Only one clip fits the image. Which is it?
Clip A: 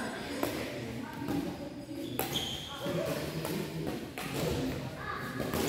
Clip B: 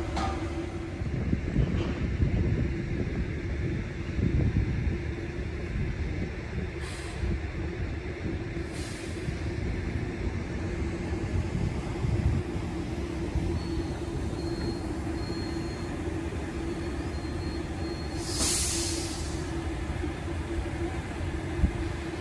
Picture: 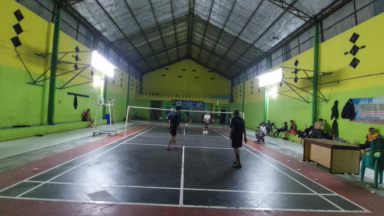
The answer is A